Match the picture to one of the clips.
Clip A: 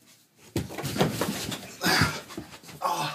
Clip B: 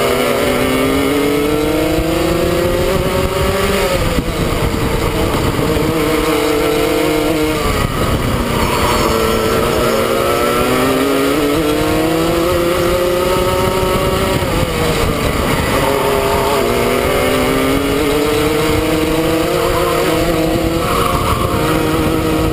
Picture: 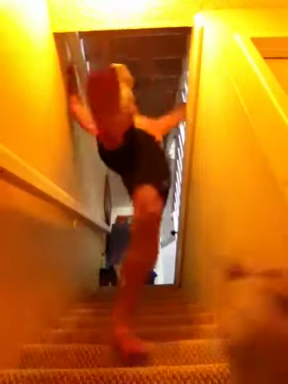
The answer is A